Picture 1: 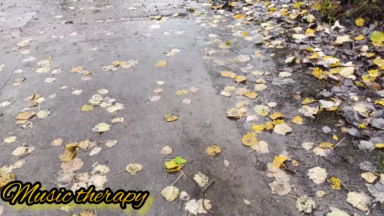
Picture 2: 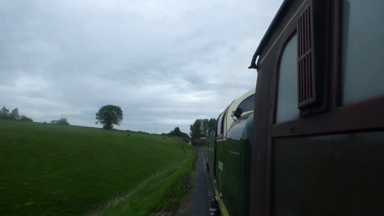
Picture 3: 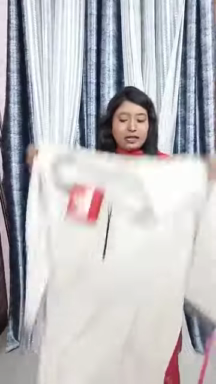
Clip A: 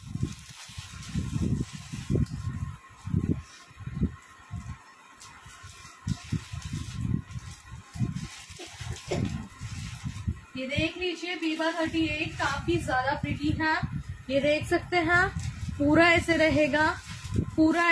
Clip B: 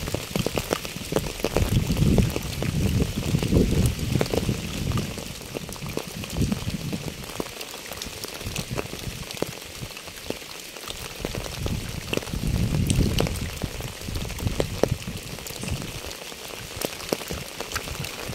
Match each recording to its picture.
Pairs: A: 3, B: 1